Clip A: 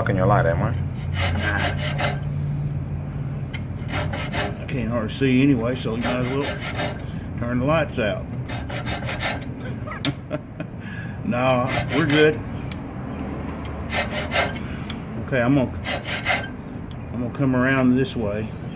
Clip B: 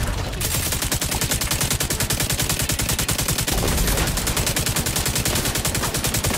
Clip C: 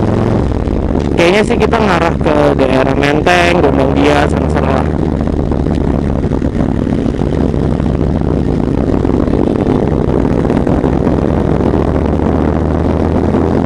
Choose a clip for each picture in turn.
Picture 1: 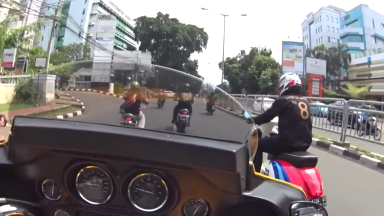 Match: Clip C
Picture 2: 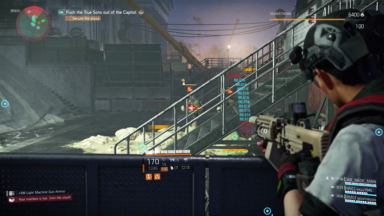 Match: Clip B